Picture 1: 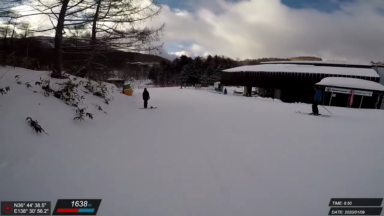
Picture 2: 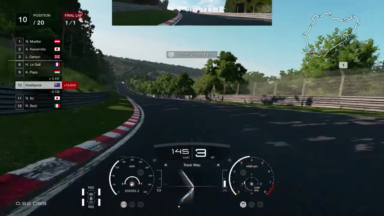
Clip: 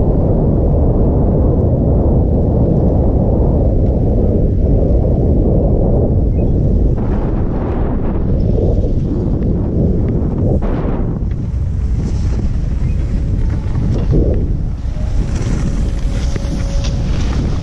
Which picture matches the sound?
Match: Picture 1